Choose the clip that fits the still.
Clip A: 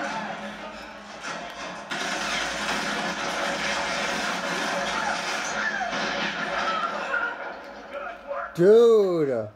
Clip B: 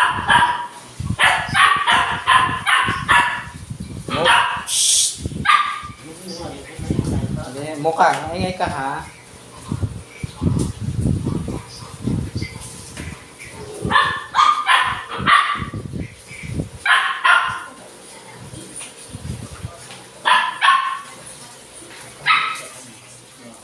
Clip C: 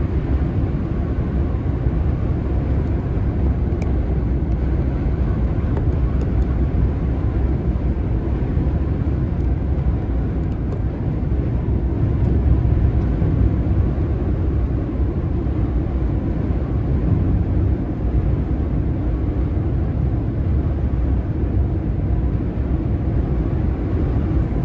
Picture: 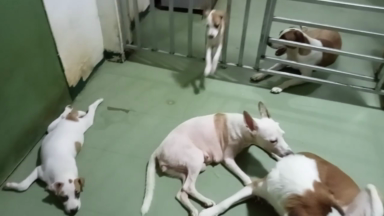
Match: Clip B